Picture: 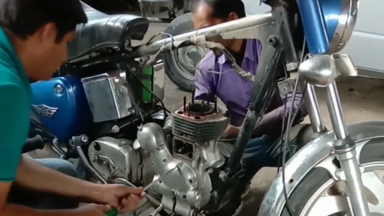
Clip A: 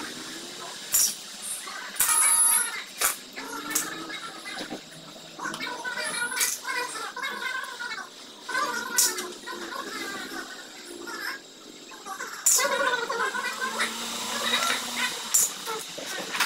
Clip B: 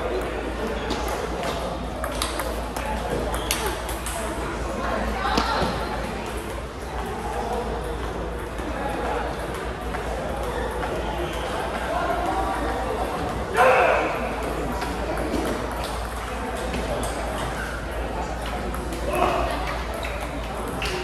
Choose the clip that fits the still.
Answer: A